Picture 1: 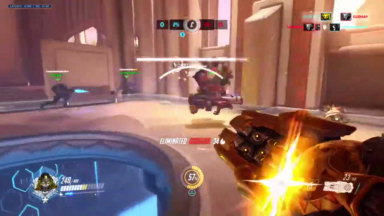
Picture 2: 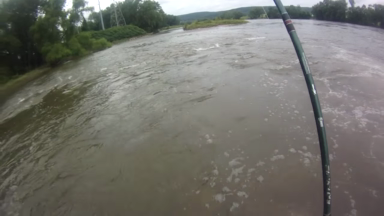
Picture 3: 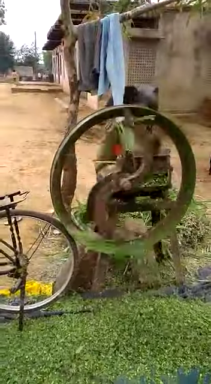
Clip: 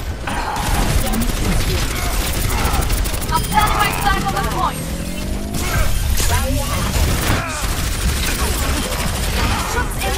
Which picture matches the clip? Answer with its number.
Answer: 1